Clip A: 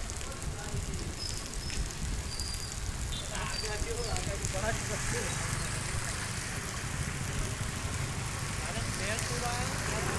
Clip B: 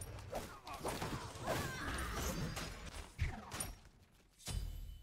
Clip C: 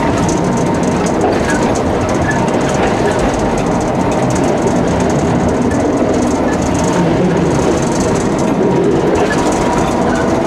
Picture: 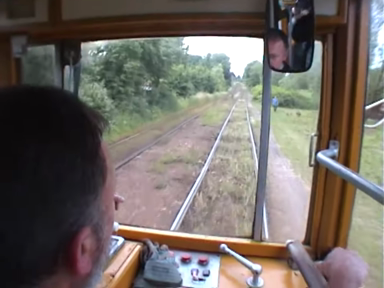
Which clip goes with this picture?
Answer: C